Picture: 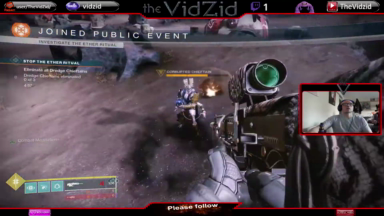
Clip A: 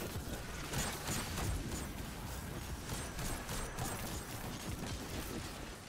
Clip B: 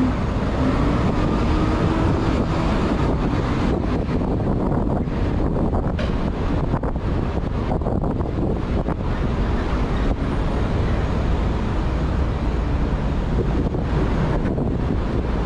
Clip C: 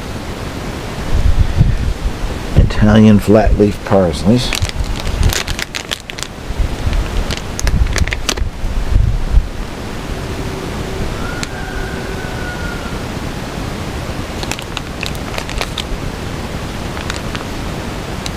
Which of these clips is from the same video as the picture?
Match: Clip A